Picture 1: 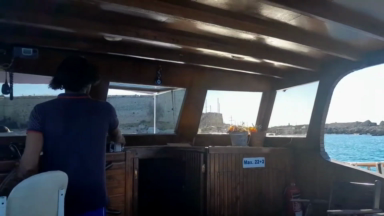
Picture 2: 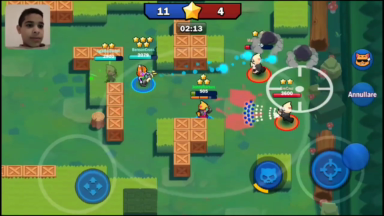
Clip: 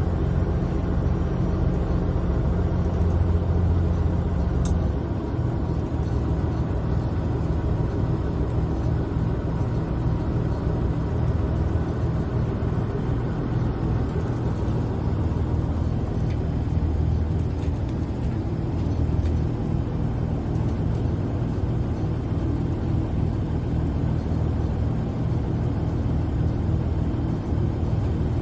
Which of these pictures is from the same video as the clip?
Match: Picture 1